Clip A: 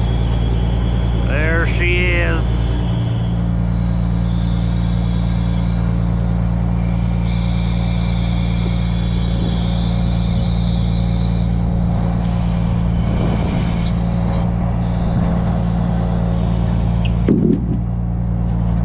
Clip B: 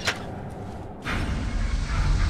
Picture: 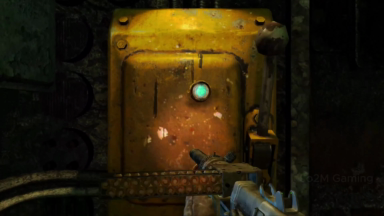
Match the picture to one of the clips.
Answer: B